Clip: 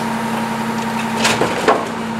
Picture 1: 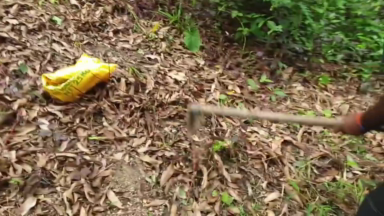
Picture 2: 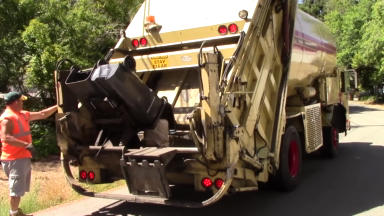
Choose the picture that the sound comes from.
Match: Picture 2